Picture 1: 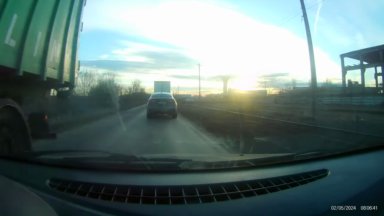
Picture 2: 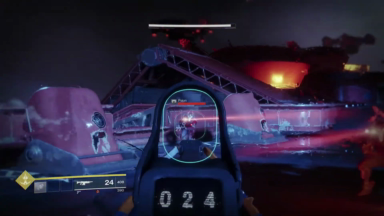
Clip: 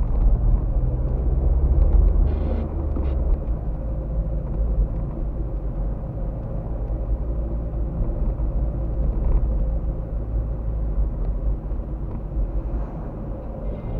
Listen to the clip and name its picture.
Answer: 1